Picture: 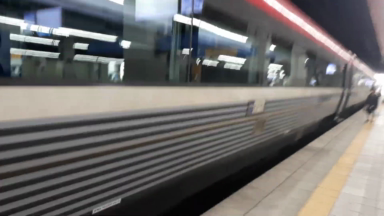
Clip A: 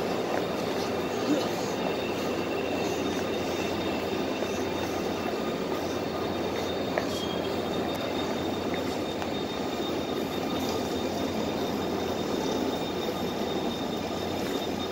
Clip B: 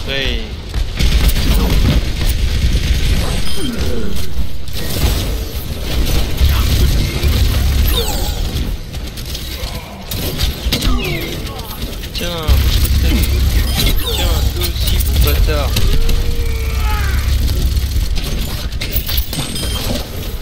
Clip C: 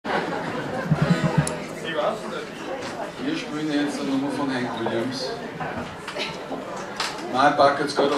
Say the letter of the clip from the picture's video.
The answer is A